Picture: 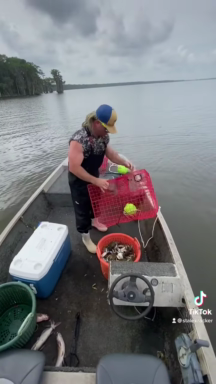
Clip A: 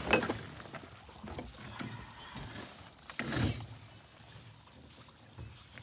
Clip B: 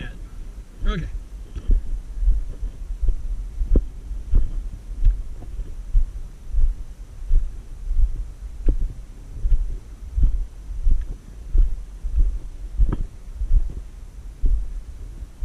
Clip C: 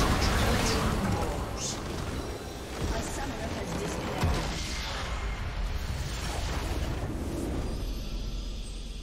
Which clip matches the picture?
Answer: A